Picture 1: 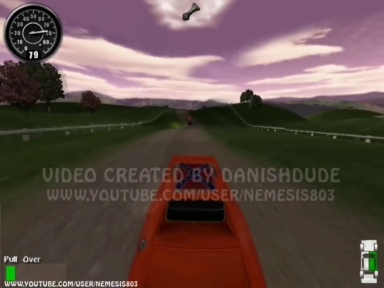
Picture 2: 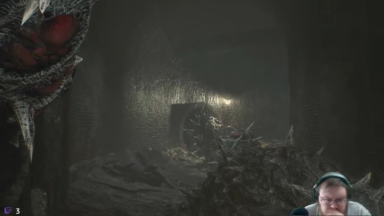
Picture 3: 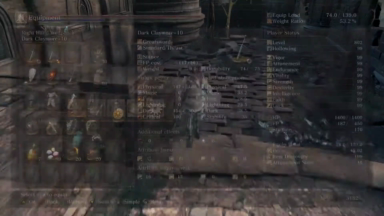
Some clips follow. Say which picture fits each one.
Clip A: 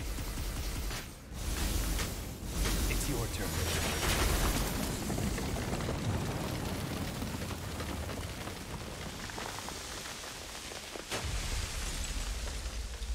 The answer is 2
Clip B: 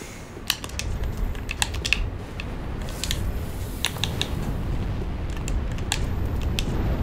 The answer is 3